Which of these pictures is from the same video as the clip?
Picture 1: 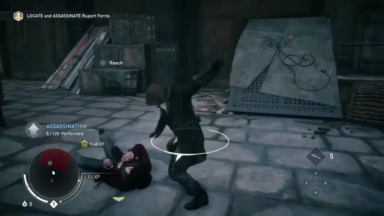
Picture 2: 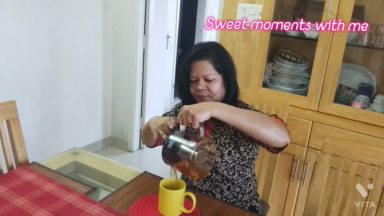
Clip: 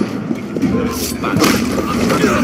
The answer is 1